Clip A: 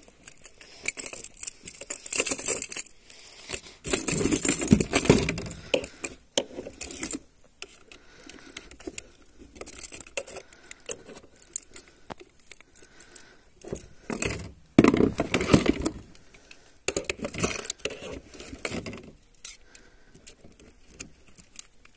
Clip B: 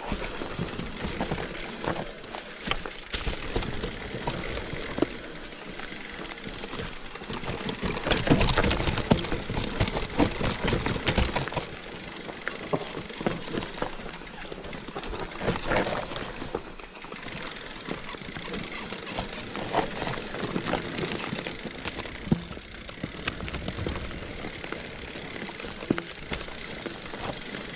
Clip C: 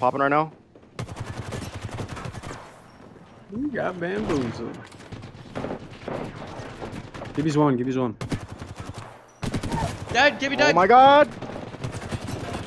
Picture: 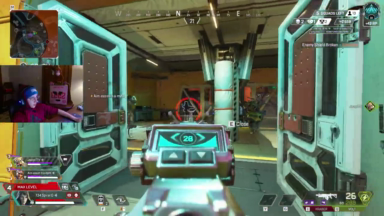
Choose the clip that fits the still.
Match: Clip C